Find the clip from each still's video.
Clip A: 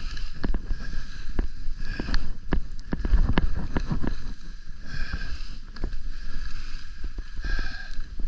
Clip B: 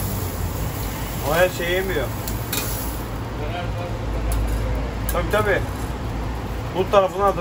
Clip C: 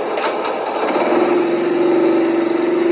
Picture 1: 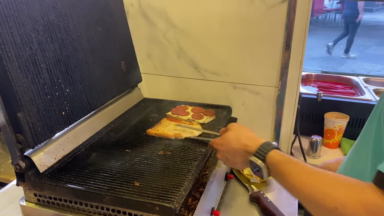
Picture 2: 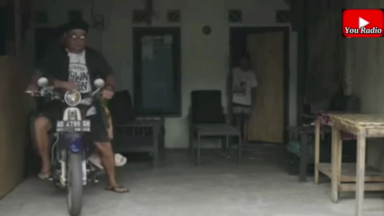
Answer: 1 B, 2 C